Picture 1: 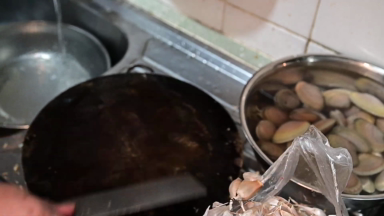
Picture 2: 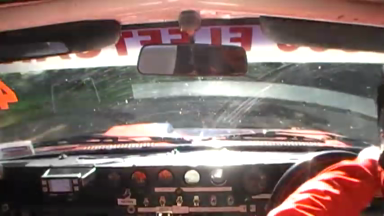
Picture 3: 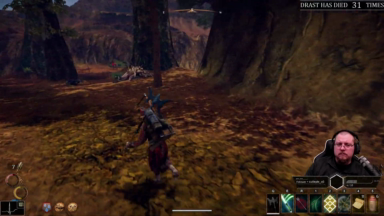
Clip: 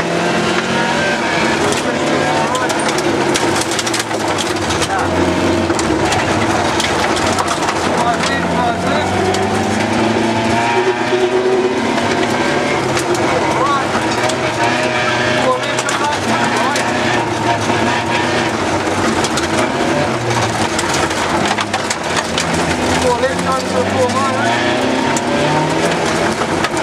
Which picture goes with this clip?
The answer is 2